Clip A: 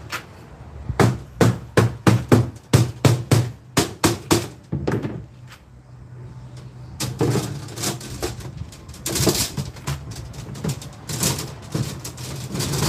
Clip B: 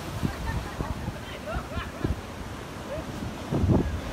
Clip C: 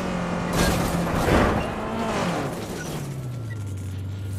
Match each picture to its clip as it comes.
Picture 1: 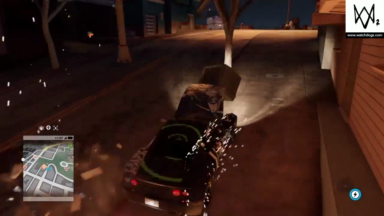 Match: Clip C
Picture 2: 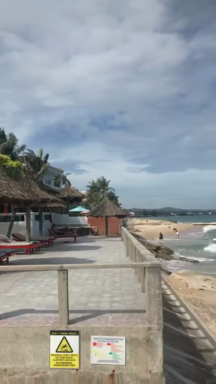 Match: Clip B